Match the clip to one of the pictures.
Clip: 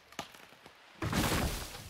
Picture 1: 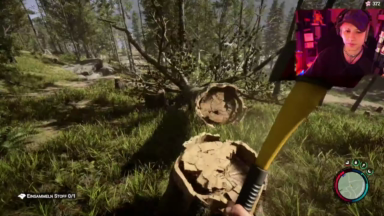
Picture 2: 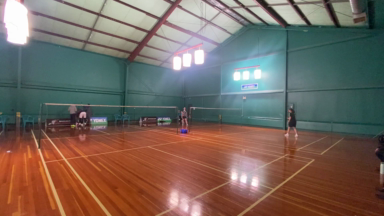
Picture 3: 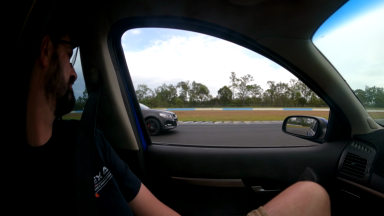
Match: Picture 1